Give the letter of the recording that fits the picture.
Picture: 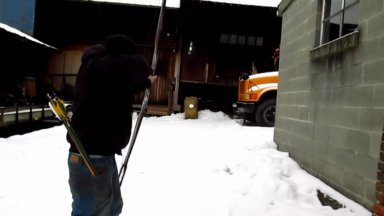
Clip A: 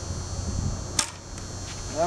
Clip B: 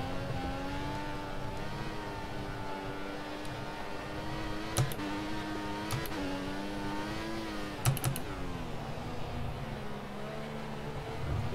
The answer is A